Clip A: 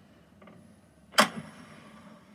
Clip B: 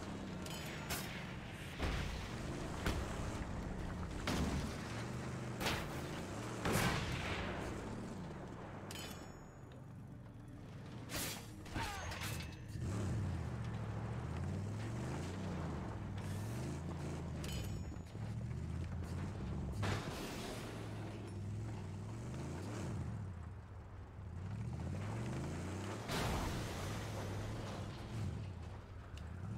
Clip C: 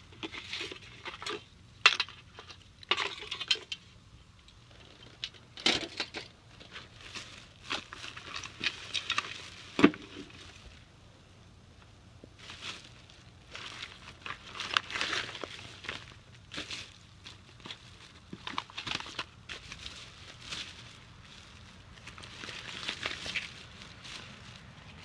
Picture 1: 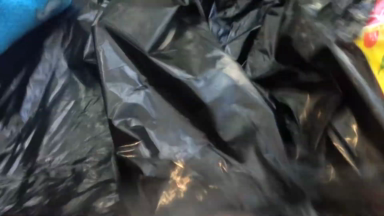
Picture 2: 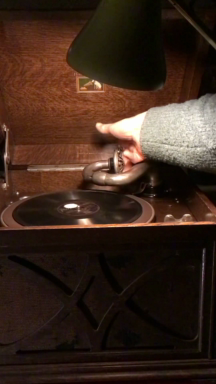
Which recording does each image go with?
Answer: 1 C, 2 A